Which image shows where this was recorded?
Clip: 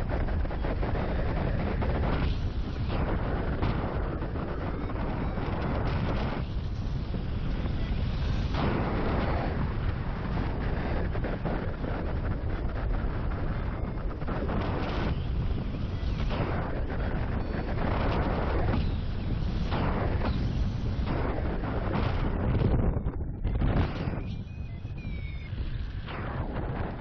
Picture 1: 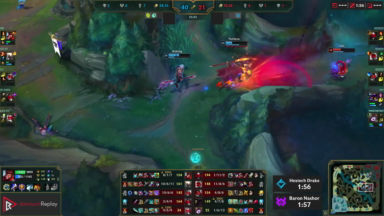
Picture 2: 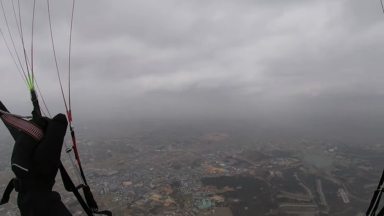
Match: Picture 2